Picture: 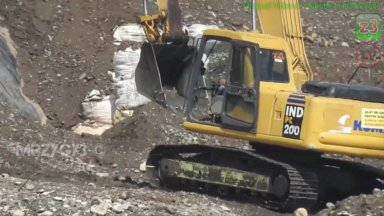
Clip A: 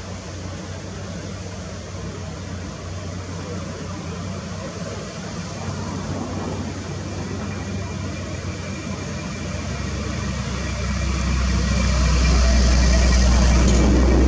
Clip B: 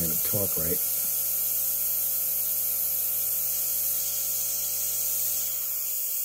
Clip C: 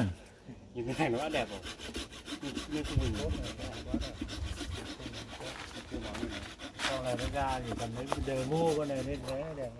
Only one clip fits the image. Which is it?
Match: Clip A